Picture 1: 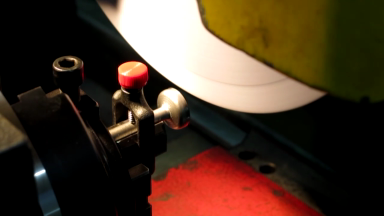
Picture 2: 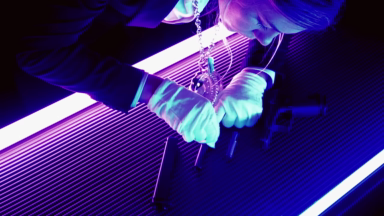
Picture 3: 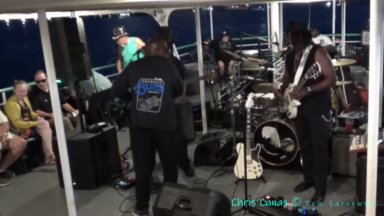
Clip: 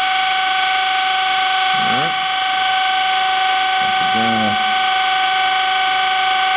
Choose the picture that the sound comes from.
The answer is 1